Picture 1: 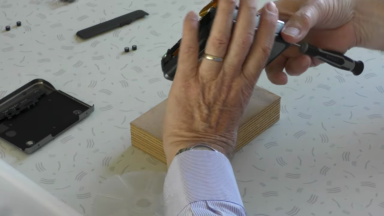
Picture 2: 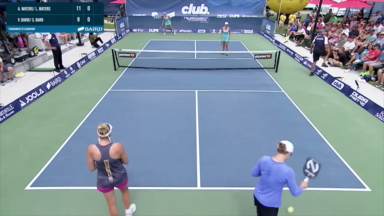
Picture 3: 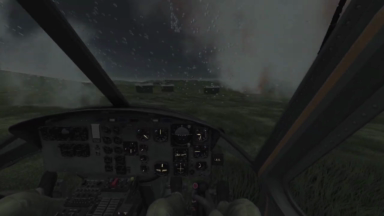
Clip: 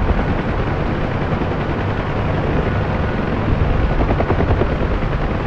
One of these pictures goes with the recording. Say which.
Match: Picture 3